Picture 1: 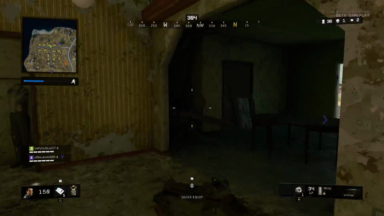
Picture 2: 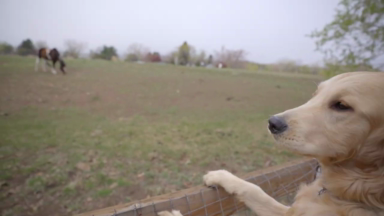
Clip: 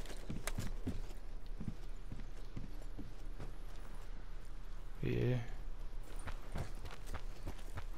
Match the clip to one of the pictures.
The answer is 1